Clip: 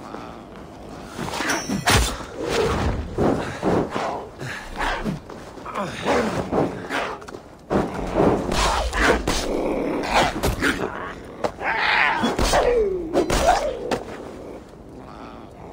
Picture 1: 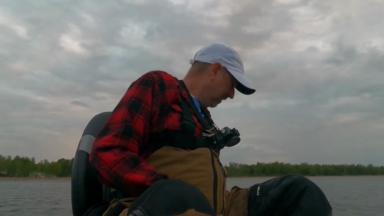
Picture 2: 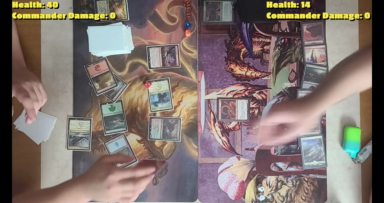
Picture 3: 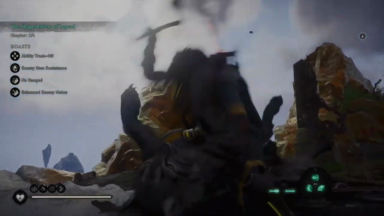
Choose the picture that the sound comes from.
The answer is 3